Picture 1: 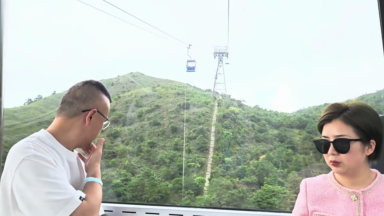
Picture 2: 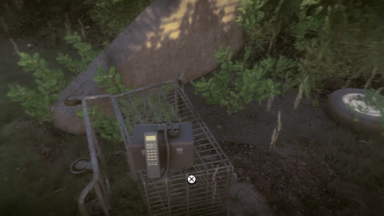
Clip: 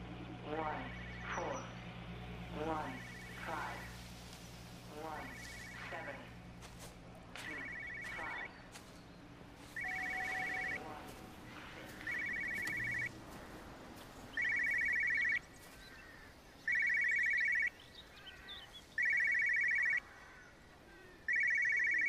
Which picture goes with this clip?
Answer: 2